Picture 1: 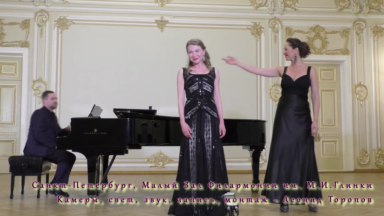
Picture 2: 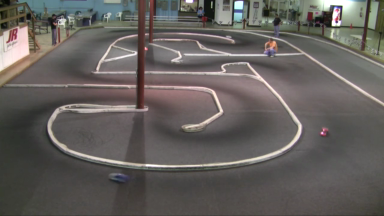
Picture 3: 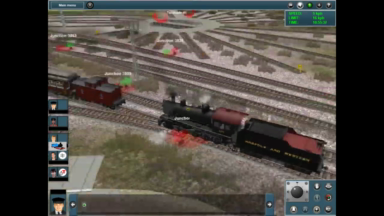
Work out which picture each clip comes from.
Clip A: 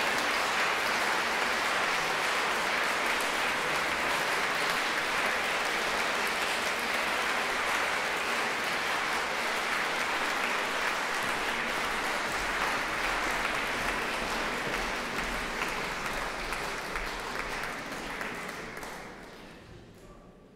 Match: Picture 1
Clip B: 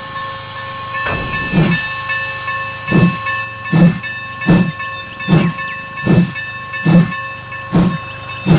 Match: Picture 3